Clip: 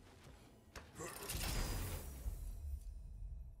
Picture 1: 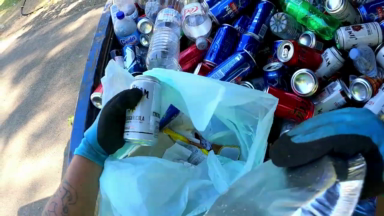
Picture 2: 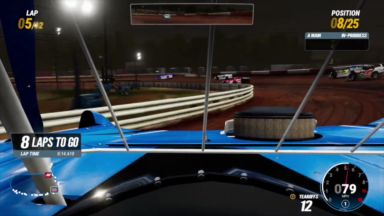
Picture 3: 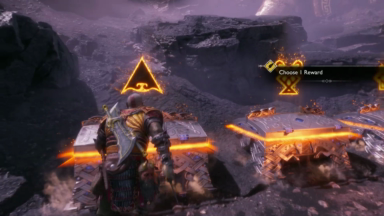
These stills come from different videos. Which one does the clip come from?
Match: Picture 3